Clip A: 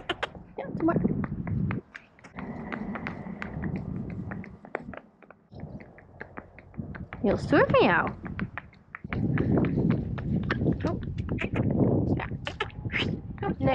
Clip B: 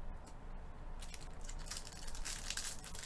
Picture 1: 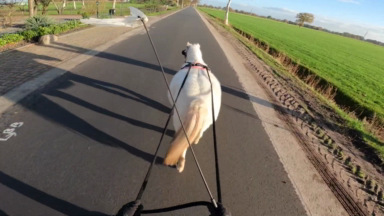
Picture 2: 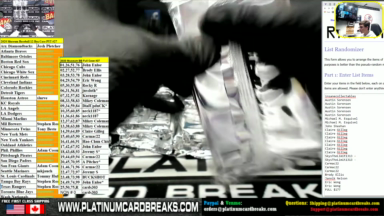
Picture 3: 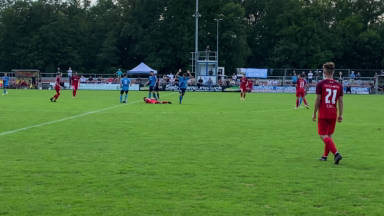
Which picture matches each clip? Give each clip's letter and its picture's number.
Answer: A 1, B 2